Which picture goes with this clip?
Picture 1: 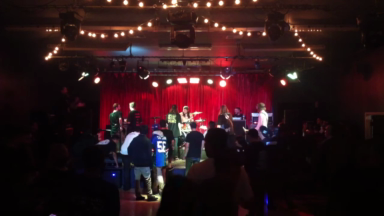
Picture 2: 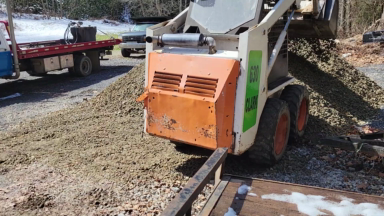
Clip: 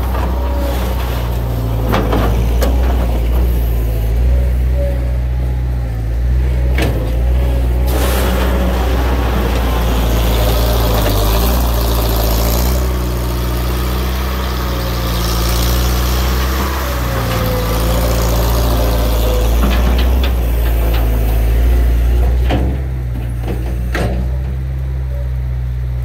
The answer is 2